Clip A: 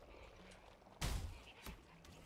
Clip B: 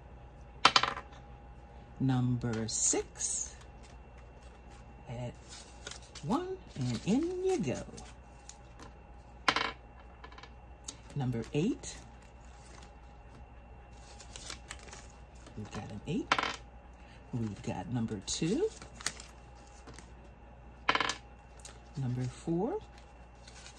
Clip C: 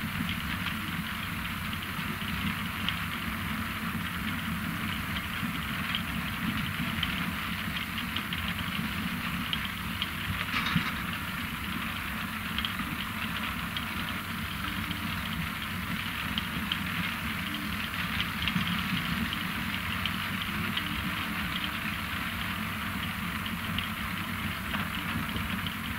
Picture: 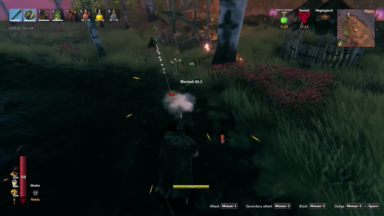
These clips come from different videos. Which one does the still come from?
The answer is A